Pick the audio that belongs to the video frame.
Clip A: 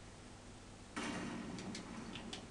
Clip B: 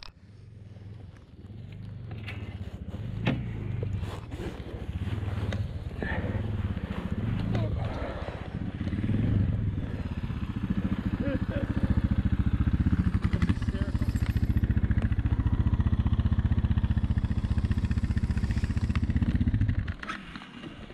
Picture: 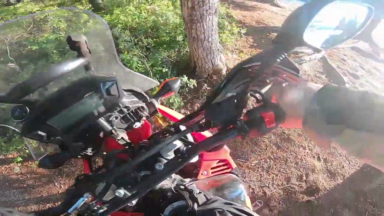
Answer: B